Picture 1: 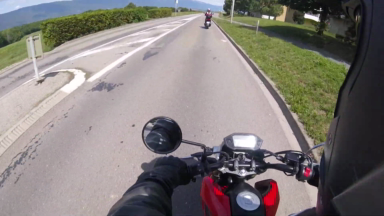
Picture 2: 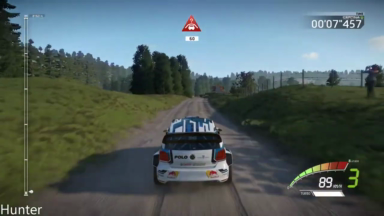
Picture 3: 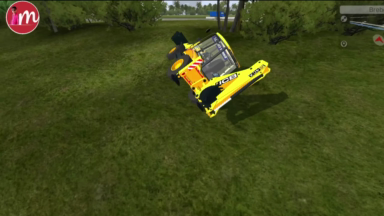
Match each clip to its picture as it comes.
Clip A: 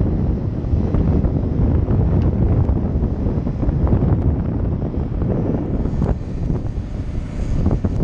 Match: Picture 1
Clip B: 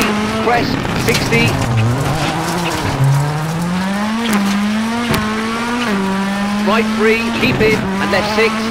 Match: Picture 2